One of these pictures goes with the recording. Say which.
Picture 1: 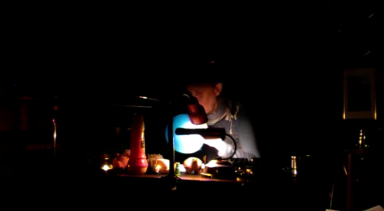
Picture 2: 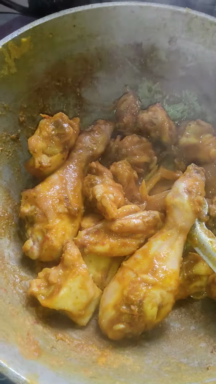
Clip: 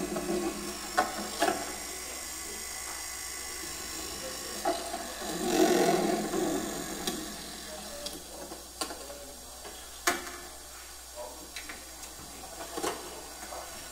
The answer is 1